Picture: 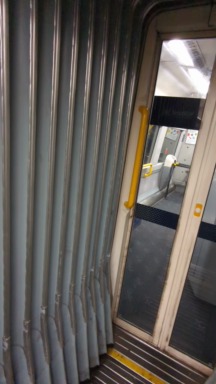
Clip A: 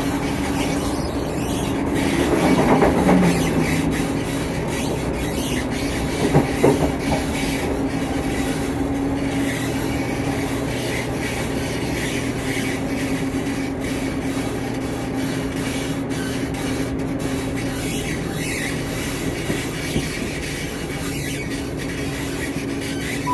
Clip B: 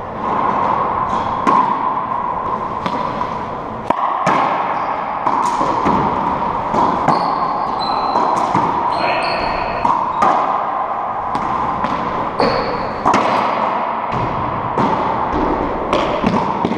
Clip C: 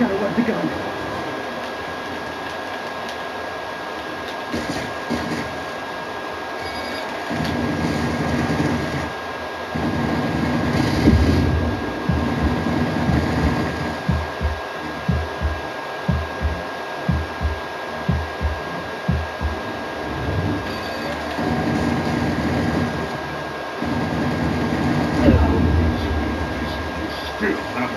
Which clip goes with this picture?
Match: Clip A